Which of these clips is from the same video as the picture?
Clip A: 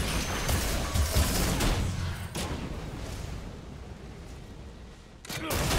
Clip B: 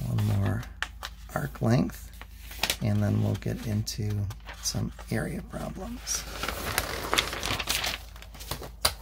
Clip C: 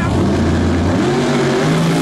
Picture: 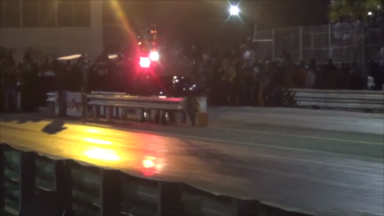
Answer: C